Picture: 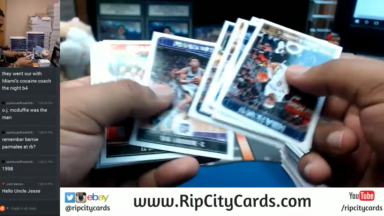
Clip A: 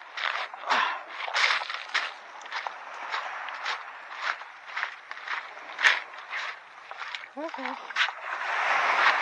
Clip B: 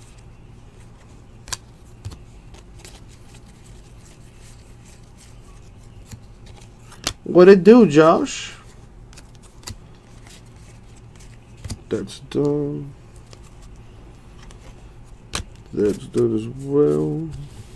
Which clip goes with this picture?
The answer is B